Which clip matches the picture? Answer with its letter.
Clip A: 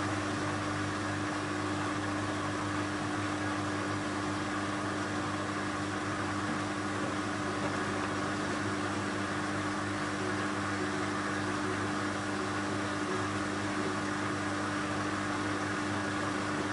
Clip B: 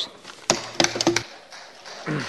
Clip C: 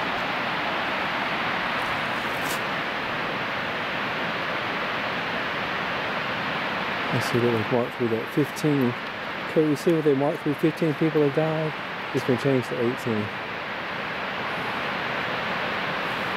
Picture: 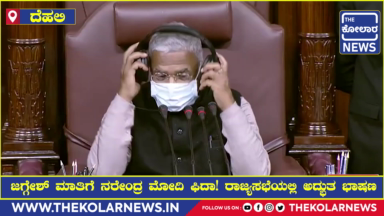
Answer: B